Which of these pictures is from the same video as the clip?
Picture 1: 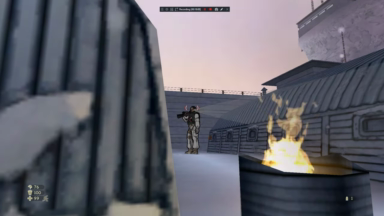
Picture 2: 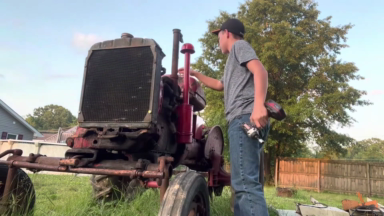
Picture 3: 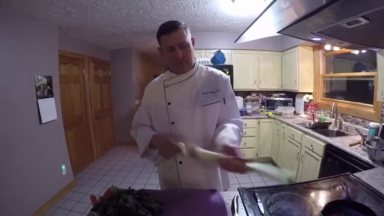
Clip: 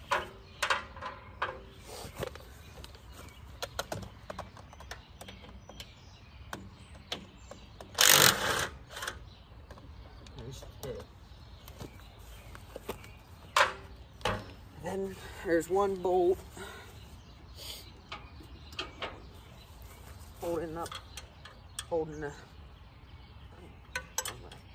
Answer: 2